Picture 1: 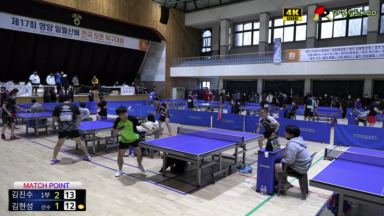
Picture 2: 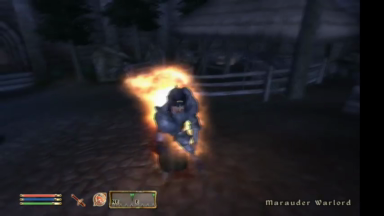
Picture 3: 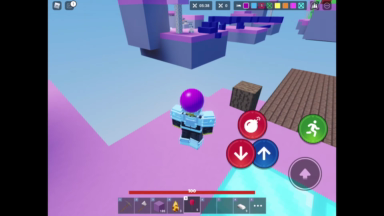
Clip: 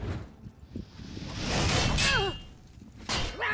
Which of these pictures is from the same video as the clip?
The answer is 2